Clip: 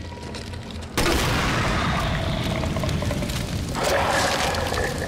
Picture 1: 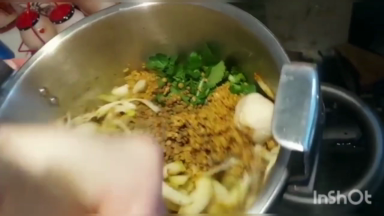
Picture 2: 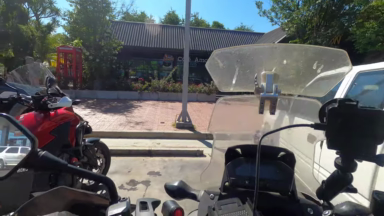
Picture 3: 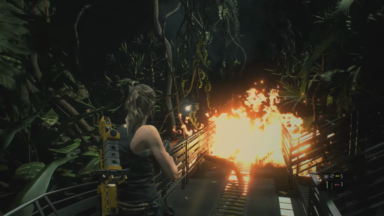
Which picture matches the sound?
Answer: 3